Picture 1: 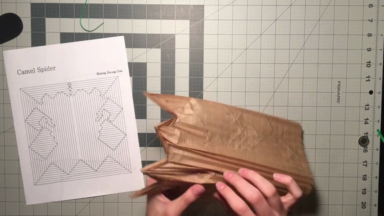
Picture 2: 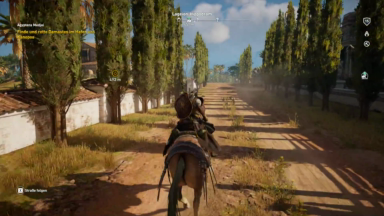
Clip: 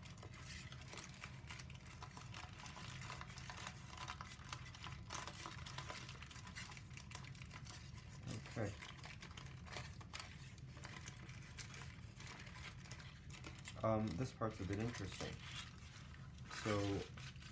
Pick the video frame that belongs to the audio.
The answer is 1